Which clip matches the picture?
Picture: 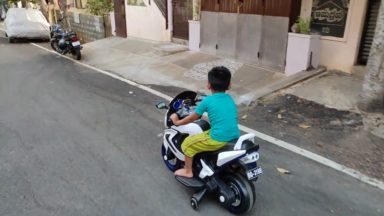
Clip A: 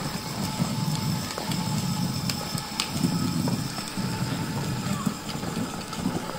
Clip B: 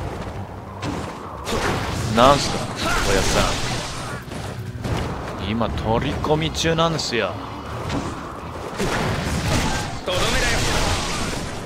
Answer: A